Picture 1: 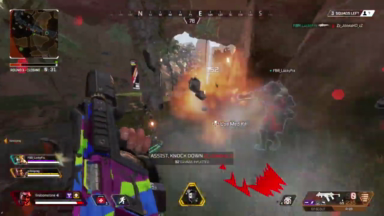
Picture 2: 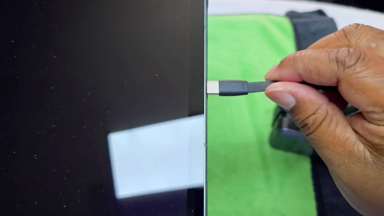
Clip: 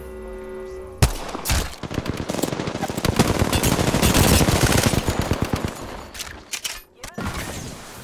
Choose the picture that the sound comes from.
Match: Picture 1